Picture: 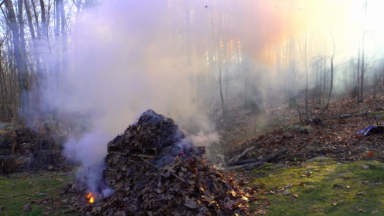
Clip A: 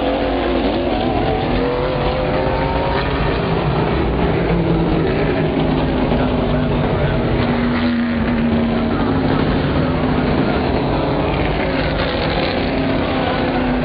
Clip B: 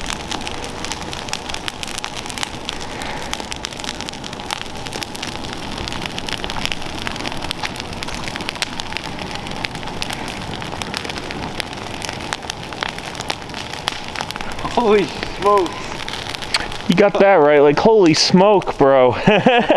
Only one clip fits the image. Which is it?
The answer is B